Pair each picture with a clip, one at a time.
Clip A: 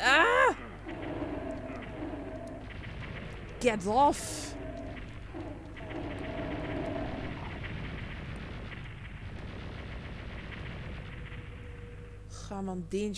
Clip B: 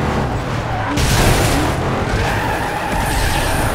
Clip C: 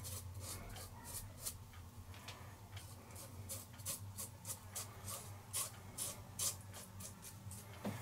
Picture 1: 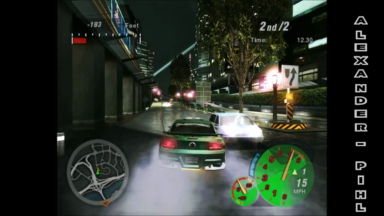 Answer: B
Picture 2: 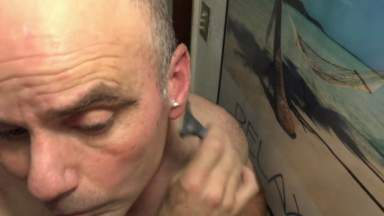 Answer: C